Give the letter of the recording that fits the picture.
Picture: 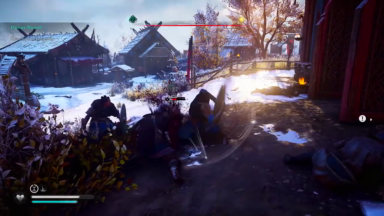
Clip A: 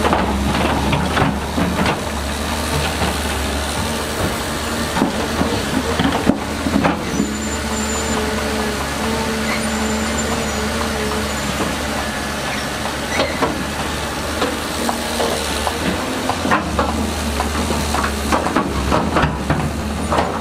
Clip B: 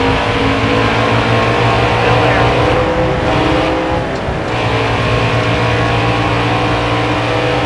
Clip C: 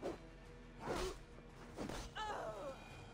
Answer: C